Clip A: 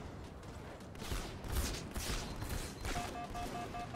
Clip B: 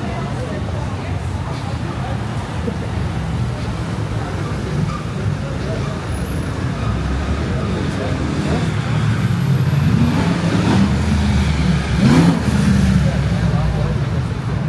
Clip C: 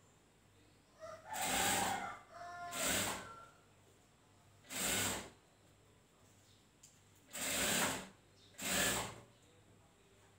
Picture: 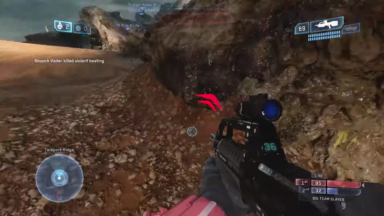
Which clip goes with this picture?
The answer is A